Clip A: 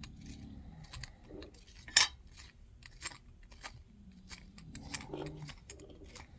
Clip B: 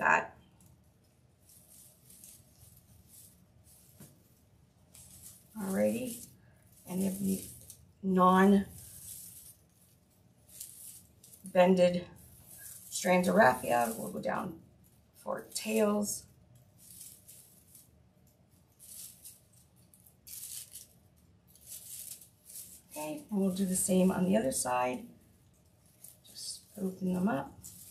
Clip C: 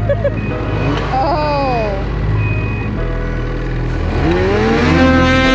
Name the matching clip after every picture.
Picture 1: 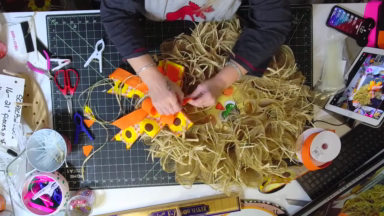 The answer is B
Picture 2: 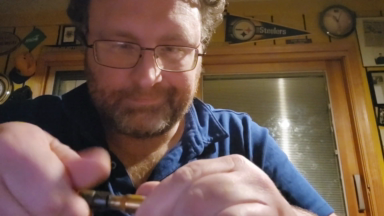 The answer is A